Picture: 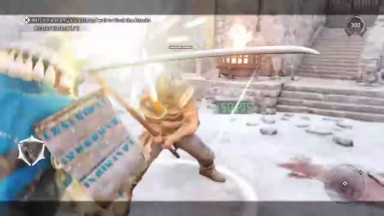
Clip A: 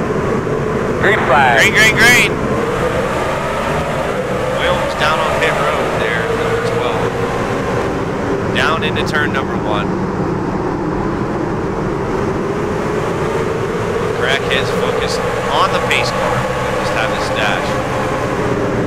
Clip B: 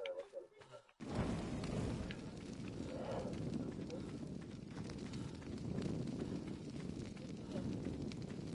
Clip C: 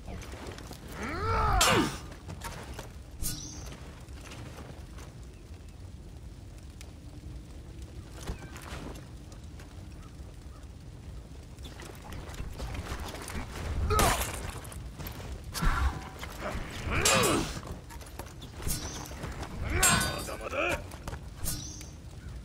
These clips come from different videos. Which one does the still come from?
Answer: C